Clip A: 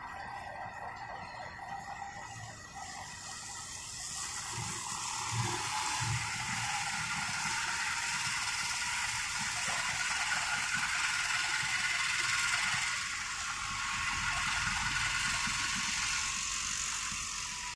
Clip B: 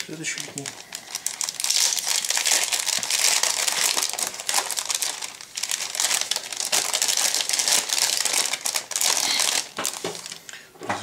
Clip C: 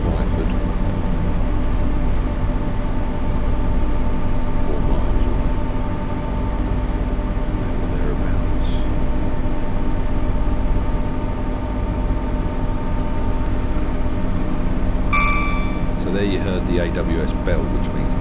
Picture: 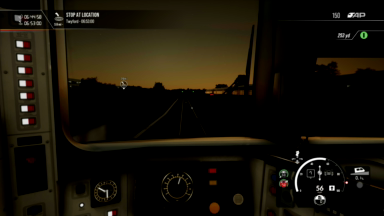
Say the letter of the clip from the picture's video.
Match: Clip C